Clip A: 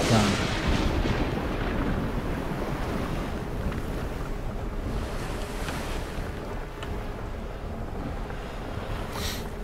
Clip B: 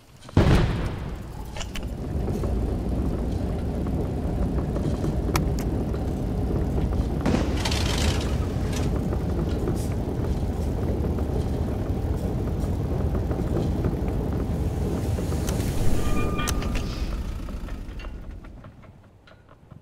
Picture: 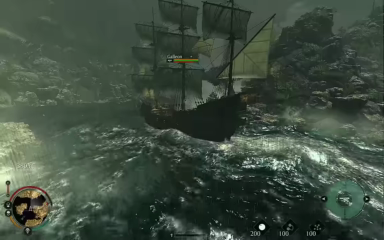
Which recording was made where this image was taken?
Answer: A